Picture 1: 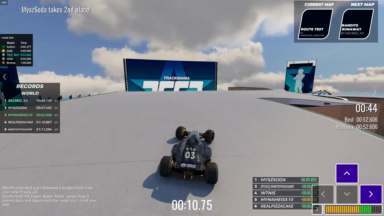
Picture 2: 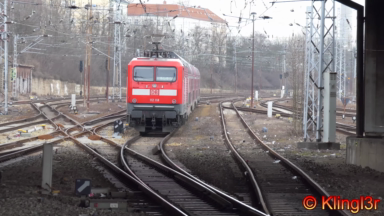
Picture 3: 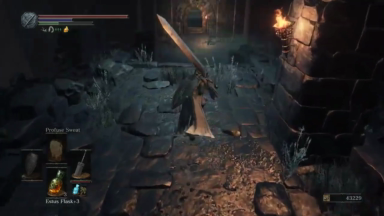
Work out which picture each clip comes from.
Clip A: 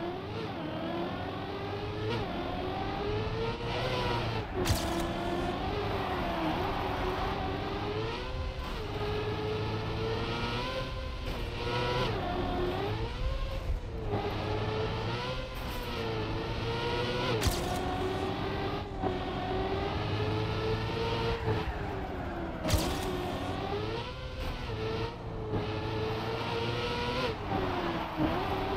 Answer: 1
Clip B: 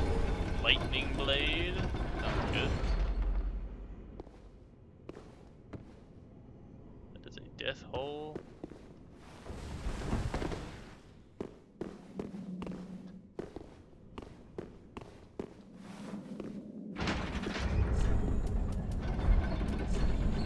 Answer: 3